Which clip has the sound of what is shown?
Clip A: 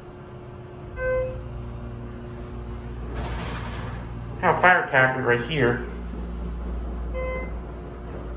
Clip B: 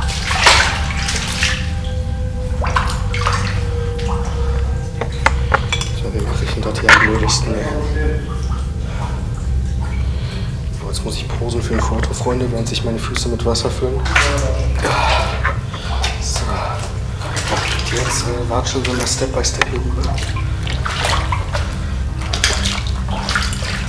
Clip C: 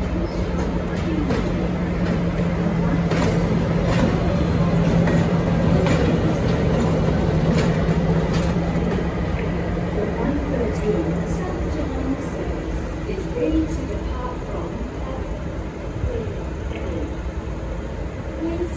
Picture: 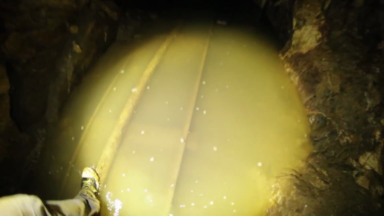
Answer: B